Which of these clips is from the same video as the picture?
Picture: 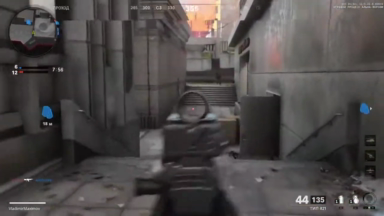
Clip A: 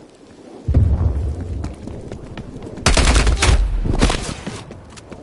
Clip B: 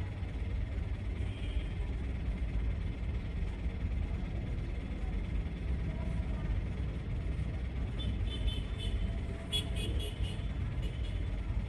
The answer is A